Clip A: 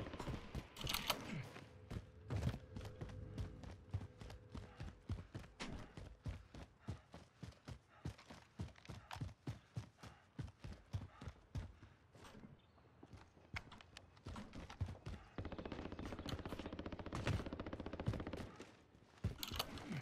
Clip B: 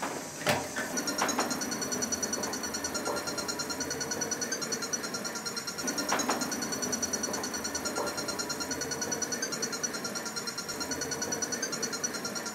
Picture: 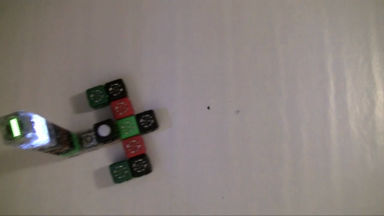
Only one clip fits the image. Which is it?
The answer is B